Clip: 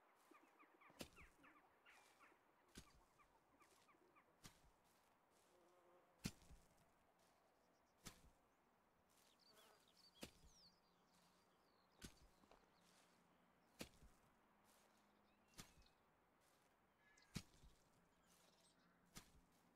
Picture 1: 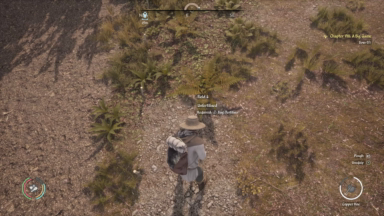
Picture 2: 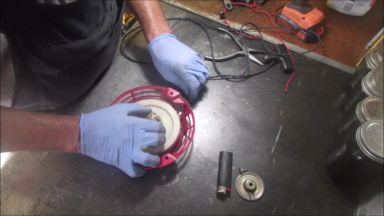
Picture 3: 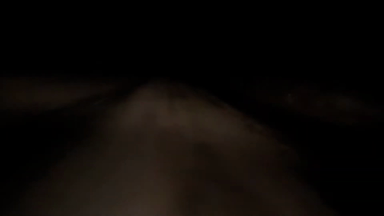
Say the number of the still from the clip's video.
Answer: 1